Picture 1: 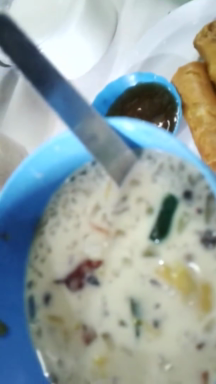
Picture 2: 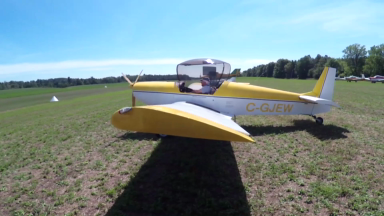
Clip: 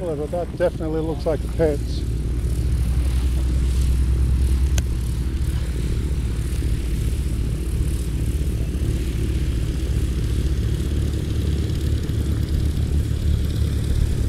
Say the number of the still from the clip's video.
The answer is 2